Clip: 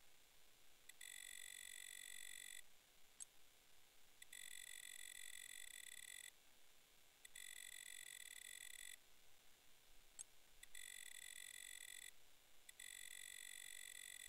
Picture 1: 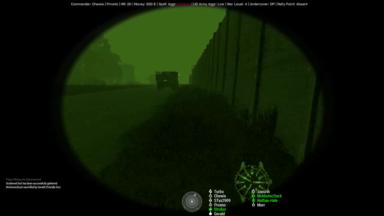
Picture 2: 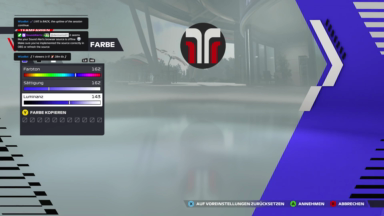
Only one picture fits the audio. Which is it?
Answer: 2